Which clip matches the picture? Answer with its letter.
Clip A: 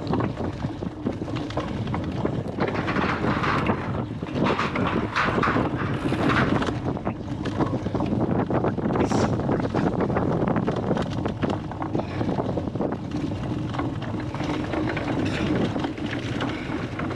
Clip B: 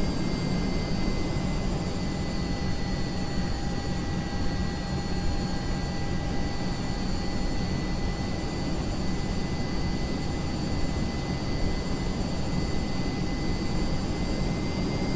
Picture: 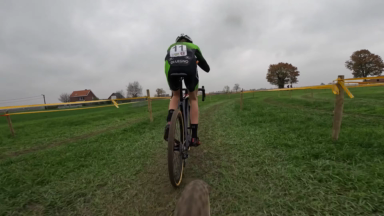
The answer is A